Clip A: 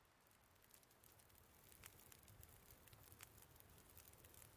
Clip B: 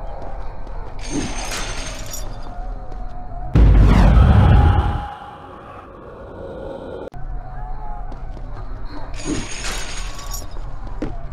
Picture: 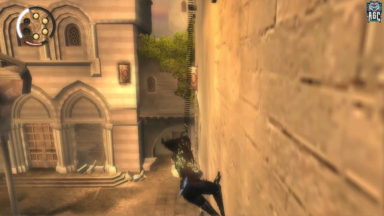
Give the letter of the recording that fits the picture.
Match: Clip B